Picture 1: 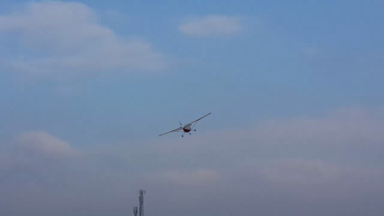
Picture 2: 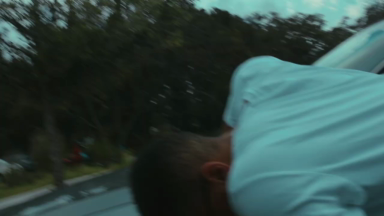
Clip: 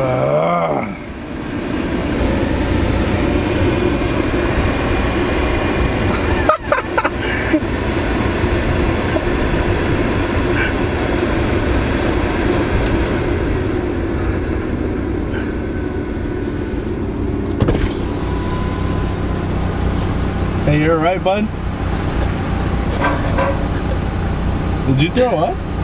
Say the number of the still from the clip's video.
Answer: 2